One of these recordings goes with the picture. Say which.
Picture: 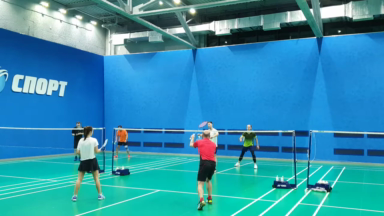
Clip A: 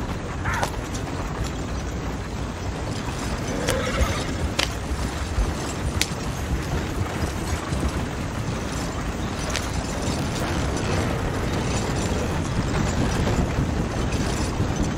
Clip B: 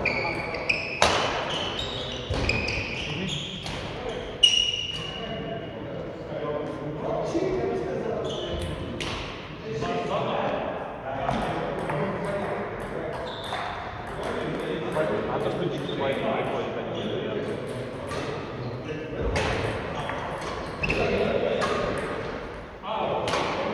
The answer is B